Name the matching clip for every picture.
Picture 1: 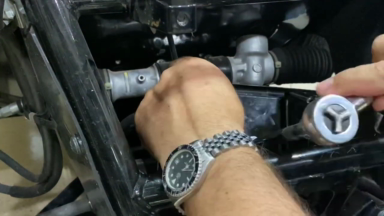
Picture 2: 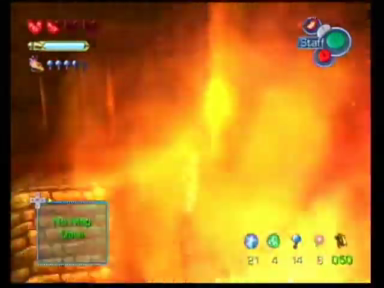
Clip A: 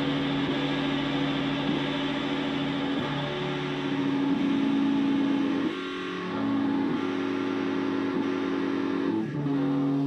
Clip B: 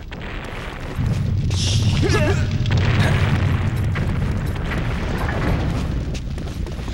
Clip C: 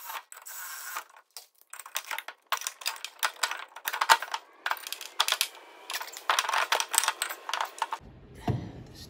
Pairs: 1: C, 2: B